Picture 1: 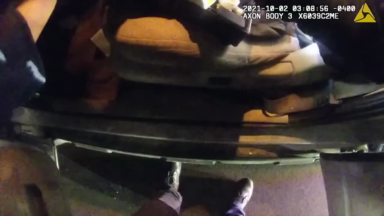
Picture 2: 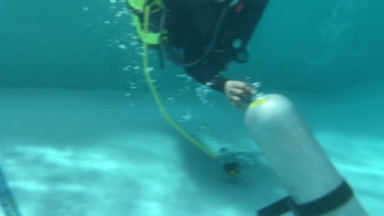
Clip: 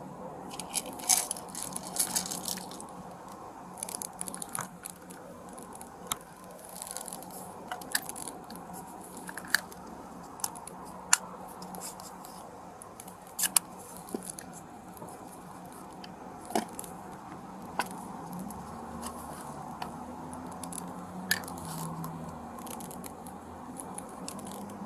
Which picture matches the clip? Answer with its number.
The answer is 1